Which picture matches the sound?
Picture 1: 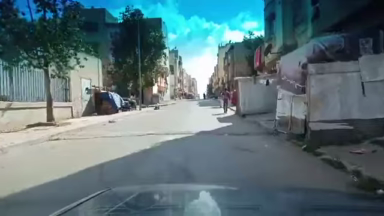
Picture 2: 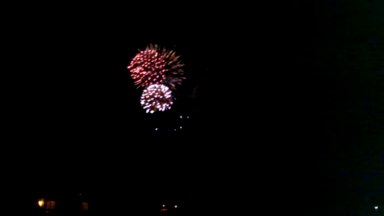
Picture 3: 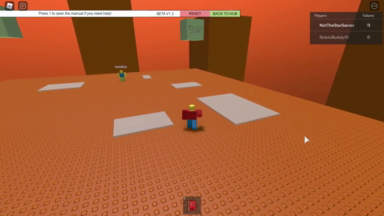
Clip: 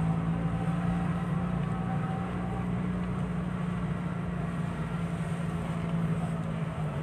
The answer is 1